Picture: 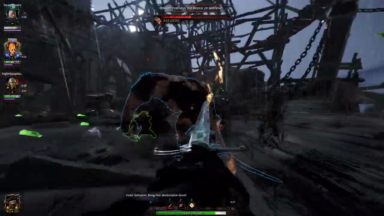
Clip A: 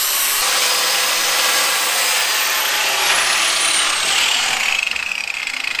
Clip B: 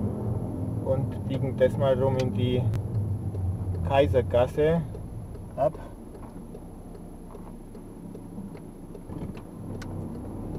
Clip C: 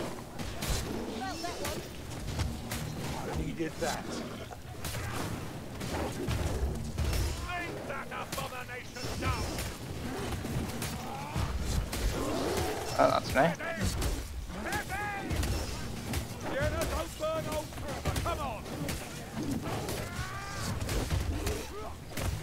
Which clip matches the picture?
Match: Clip C